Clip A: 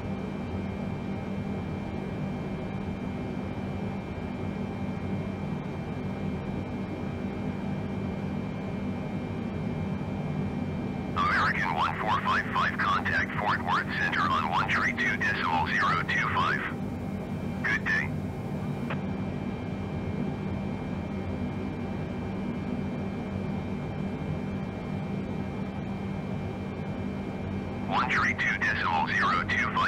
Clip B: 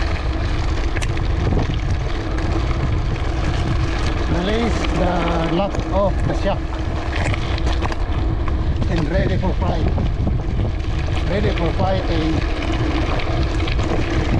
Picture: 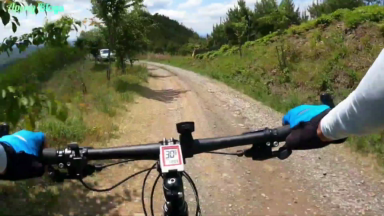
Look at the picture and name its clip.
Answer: B